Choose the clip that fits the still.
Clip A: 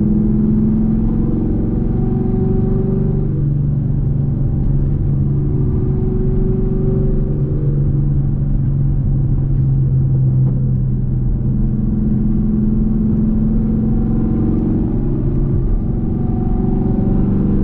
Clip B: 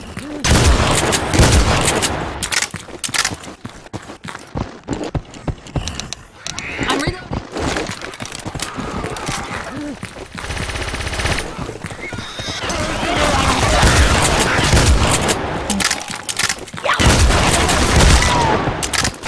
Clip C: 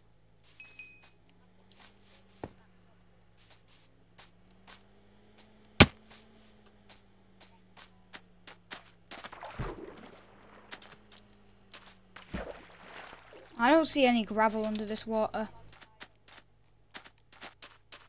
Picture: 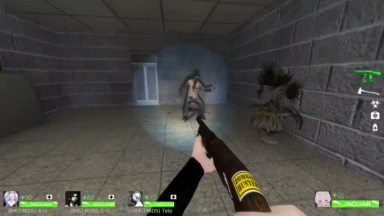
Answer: B